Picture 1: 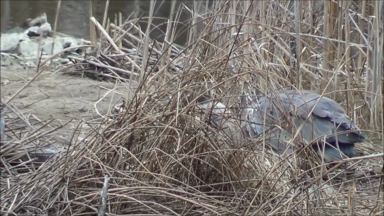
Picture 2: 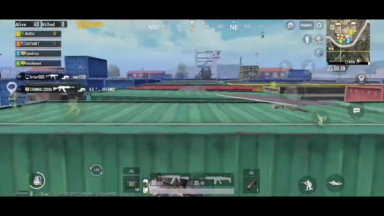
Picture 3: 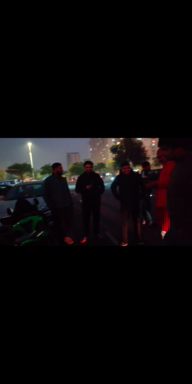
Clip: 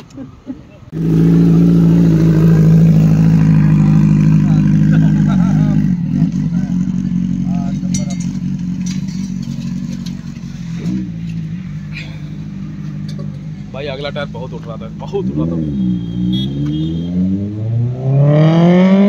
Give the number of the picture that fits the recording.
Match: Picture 3